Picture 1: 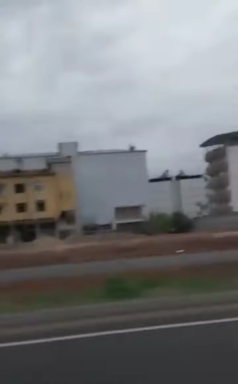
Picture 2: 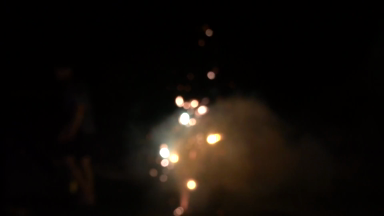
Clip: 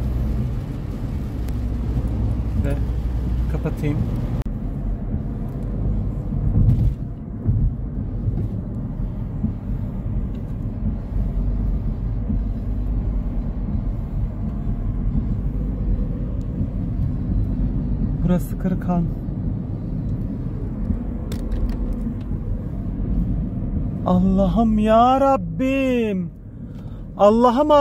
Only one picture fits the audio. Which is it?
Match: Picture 1